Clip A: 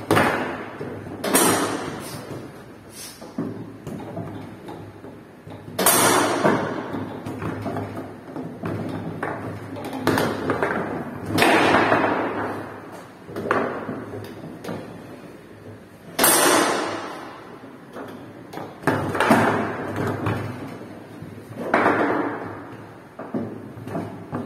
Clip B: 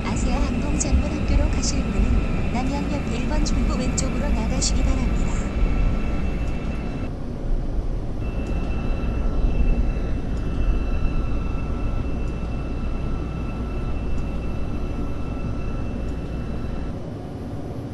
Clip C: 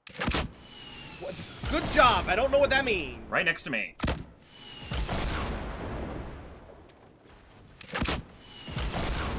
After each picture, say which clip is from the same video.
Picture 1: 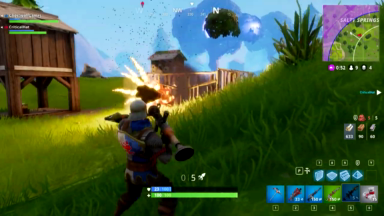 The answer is C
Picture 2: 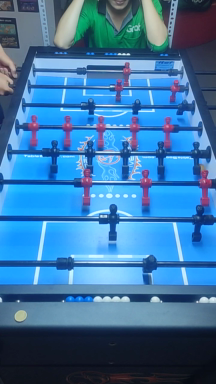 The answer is A